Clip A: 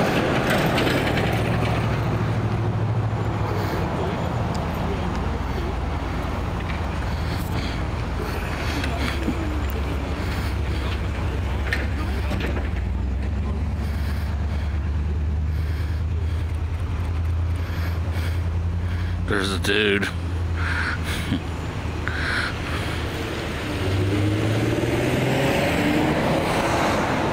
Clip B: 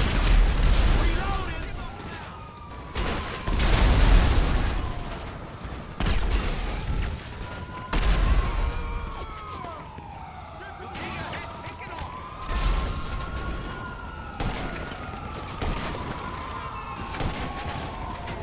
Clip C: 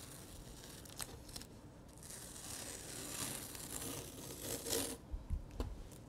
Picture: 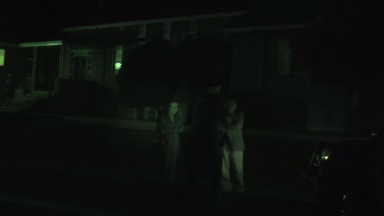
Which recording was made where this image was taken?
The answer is A